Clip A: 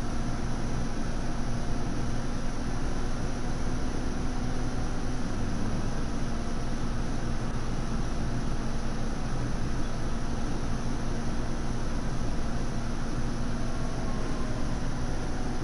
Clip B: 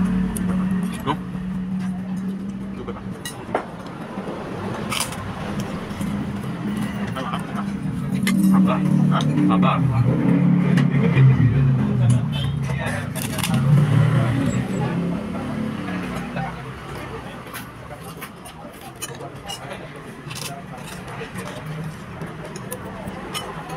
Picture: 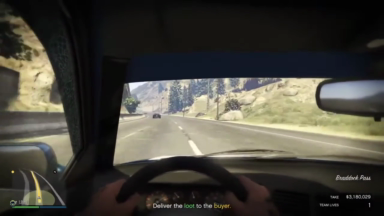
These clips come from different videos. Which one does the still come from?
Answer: A